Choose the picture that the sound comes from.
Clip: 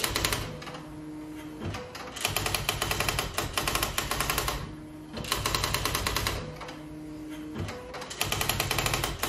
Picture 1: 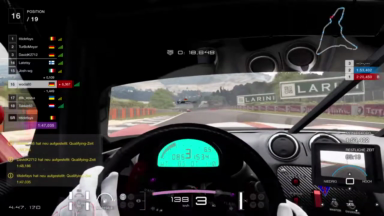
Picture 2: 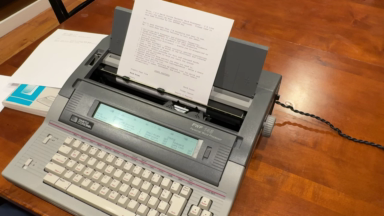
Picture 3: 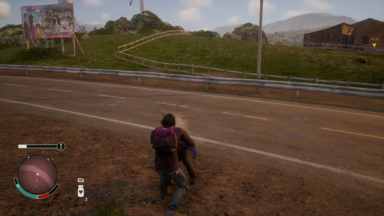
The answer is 2